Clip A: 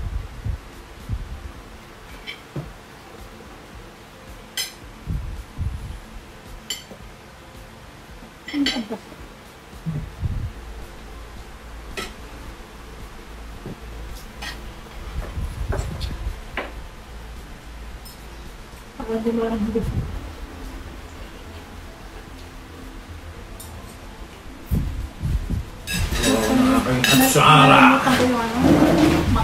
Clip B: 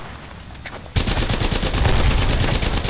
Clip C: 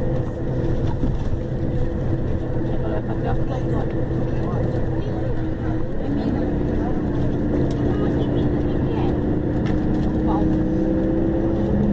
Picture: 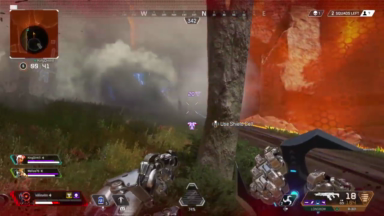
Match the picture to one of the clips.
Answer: B